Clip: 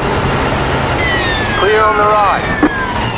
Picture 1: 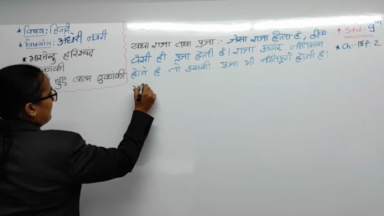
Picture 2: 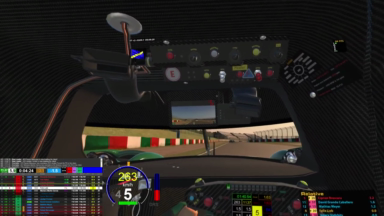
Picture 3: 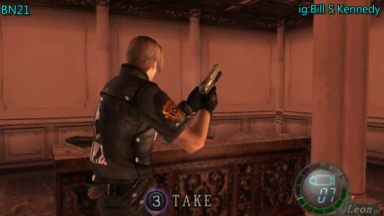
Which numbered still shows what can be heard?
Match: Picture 2